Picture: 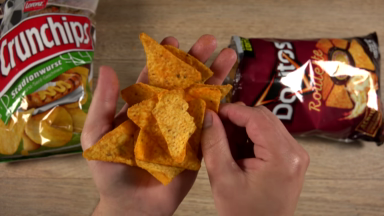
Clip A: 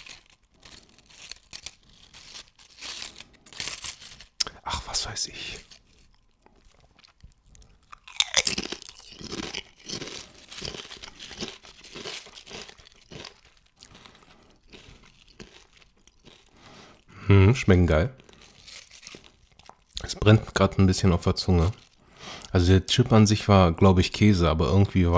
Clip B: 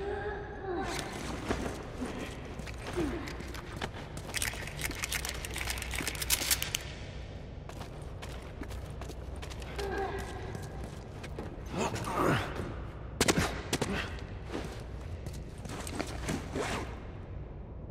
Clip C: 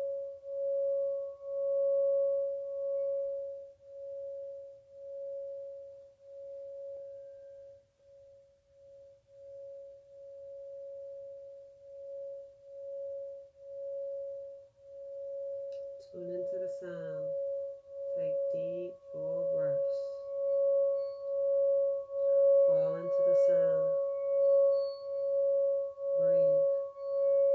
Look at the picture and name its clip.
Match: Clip A